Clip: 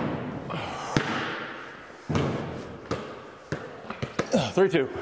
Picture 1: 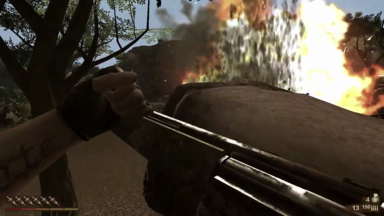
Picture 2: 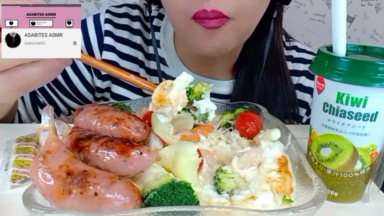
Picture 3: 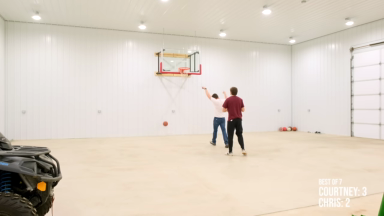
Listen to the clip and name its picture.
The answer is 3